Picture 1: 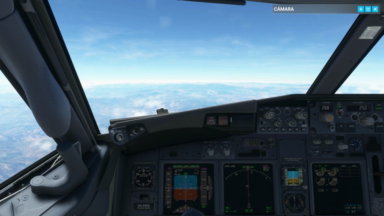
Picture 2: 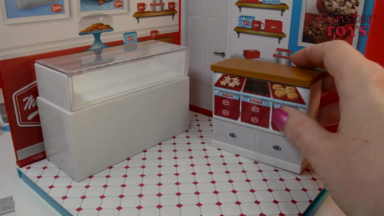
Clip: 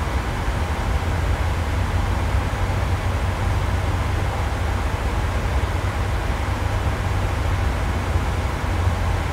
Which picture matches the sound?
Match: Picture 1